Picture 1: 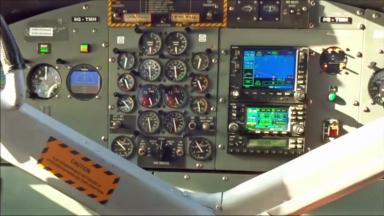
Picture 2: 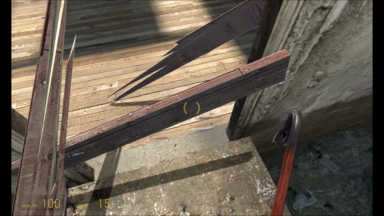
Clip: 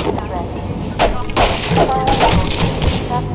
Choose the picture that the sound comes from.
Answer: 2